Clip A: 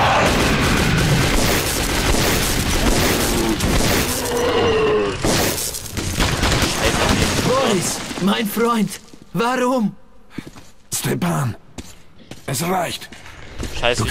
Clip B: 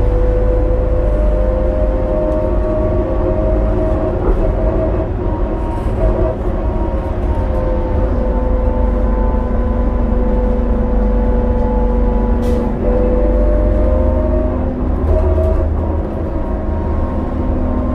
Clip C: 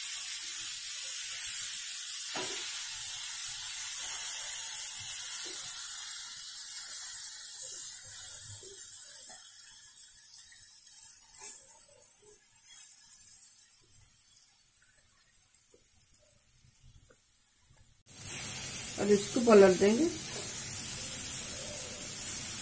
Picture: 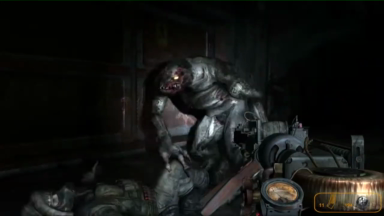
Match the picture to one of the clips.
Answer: A